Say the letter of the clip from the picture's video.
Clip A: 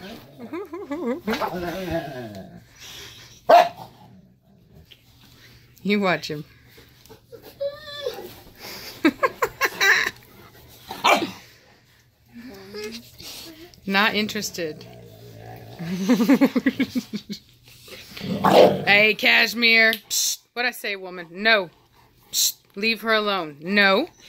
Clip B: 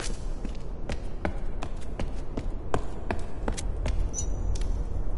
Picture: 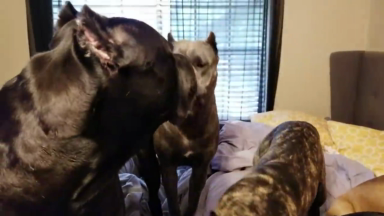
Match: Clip A